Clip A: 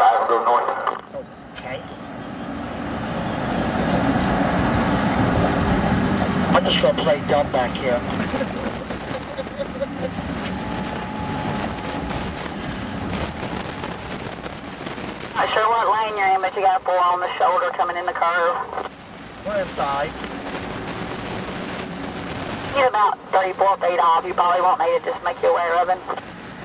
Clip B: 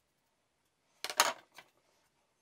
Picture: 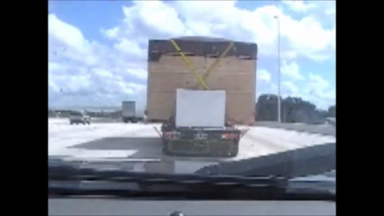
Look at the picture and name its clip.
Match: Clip A